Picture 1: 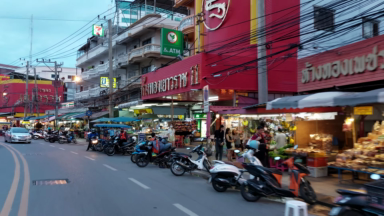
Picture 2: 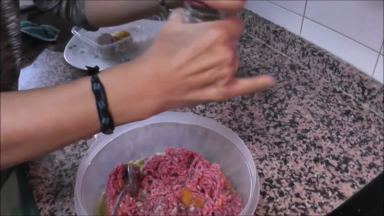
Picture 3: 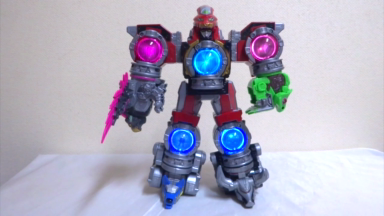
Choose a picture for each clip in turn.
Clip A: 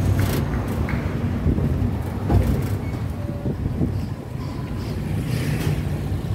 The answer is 1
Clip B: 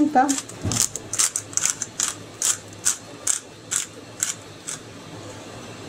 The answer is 2